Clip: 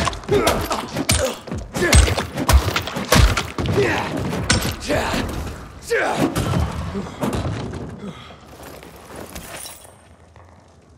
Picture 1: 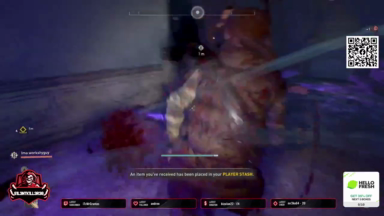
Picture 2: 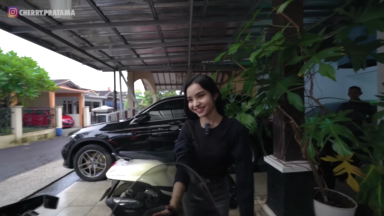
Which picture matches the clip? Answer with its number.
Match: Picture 1